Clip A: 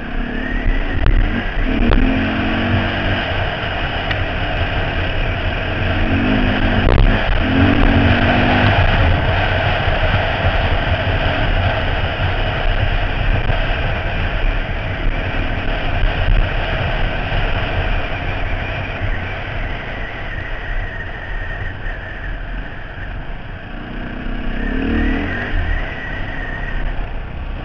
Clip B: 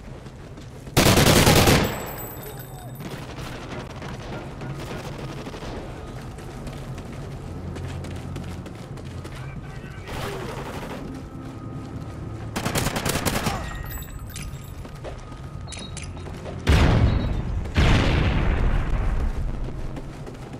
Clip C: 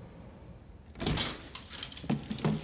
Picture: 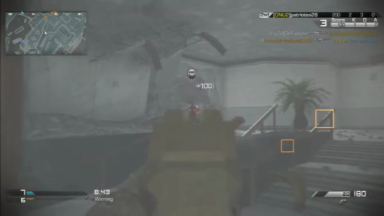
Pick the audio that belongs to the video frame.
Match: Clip B